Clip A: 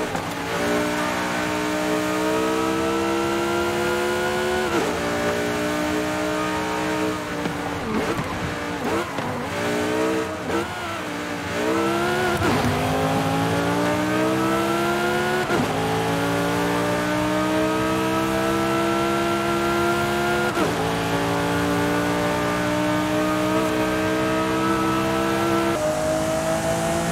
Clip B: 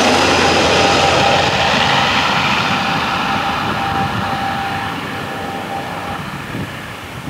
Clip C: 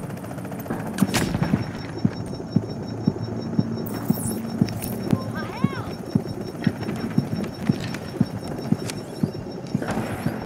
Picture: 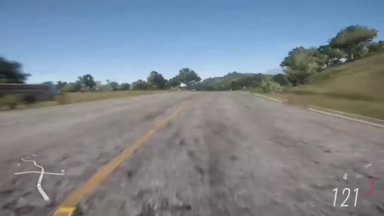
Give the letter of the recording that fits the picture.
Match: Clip A